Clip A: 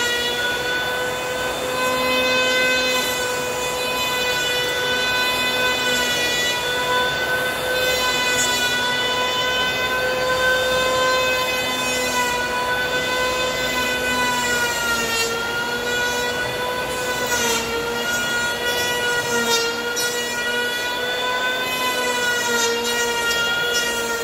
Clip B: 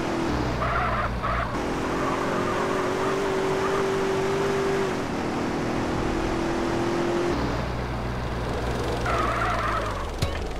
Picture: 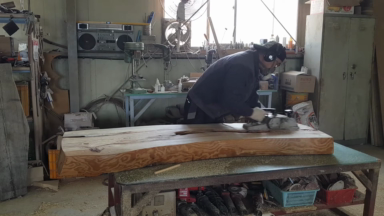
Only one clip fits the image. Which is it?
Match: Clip A